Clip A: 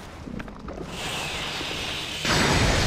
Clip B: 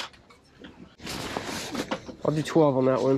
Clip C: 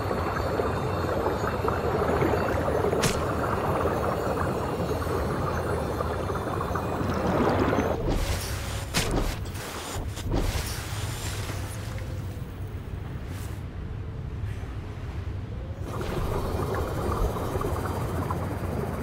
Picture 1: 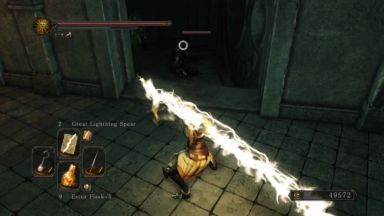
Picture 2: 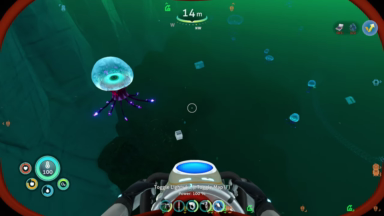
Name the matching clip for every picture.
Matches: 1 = A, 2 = C